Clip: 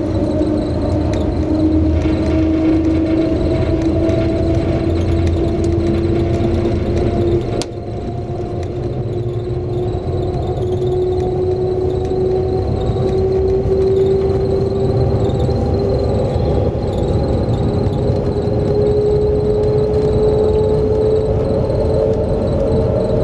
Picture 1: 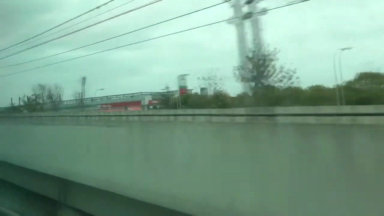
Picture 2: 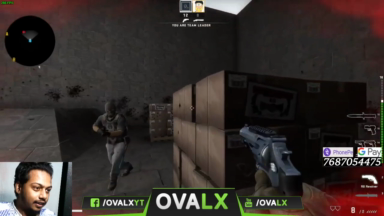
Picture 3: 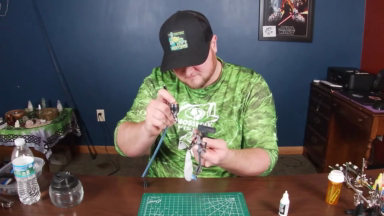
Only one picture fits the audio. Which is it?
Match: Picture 1